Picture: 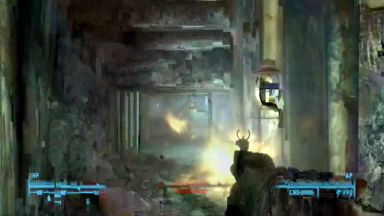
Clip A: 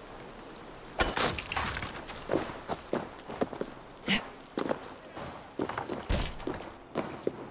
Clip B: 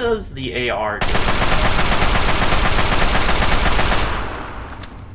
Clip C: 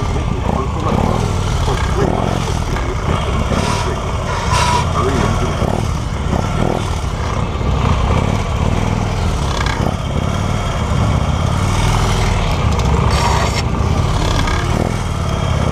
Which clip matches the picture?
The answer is B